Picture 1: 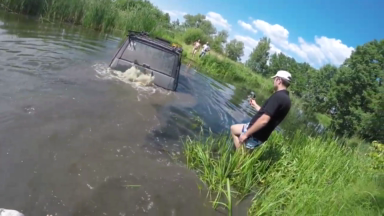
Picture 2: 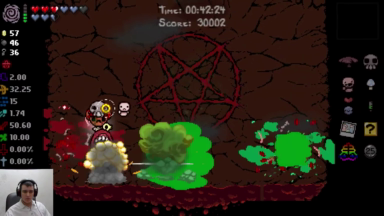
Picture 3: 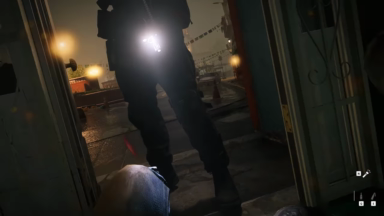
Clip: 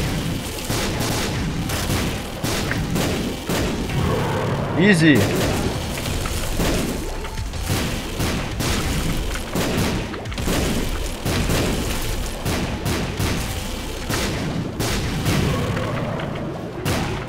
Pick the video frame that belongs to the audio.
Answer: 2